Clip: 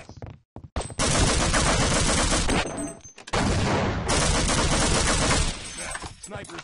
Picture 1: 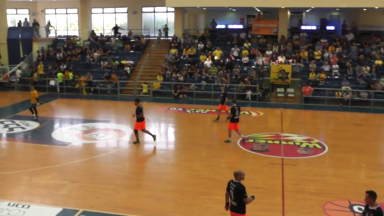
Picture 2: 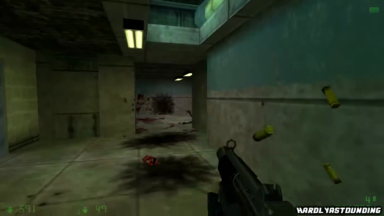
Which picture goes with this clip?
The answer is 2